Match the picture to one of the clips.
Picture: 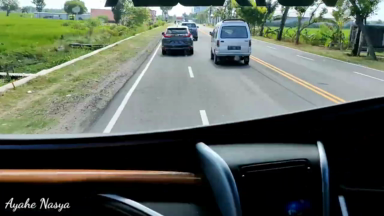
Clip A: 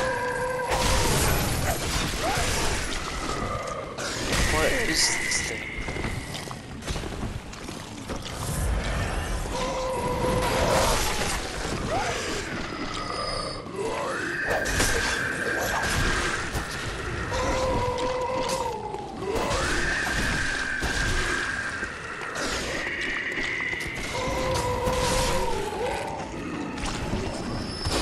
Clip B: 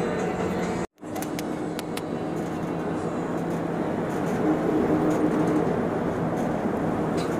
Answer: B